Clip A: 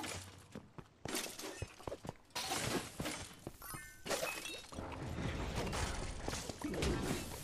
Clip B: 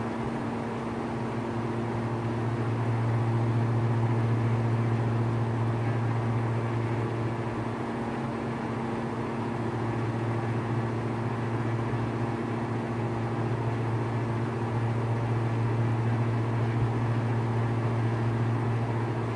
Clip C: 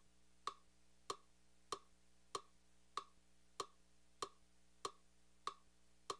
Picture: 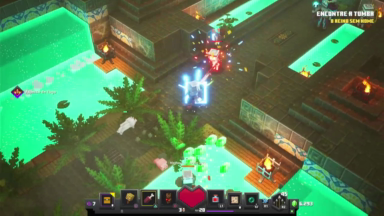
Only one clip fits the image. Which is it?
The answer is A